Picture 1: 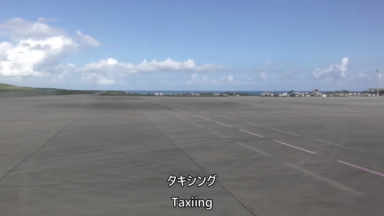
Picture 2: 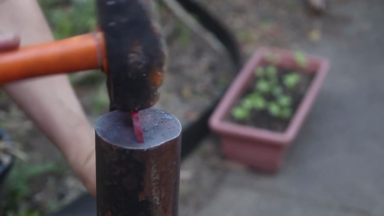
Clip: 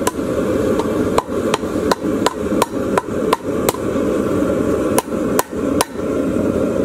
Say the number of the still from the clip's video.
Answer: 2